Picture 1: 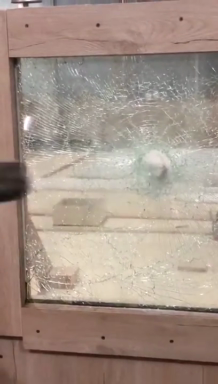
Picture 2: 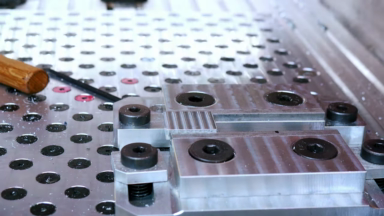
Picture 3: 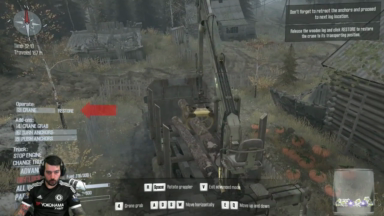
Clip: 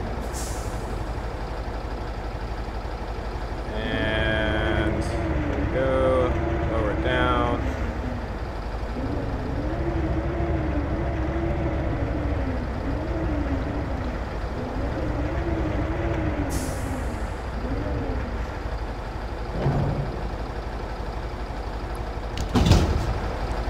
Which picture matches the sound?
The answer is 3